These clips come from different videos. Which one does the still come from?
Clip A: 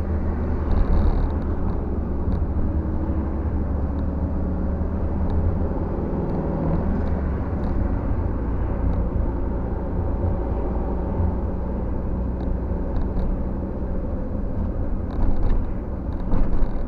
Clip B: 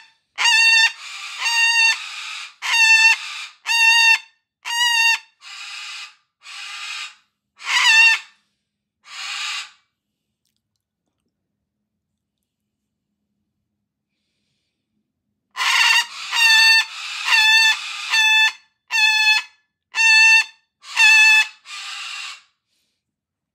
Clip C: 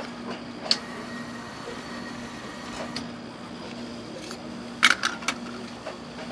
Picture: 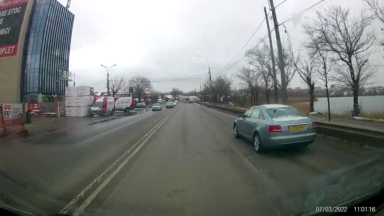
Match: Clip A